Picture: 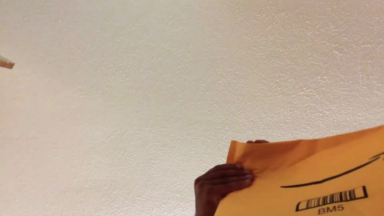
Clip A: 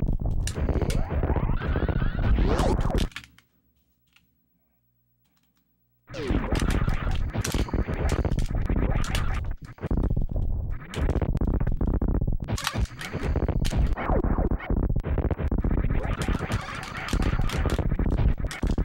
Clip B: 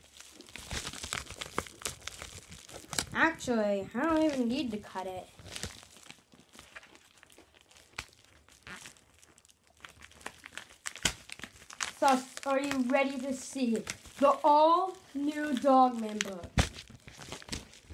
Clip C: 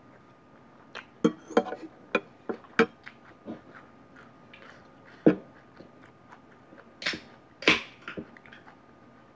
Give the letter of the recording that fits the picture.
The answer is B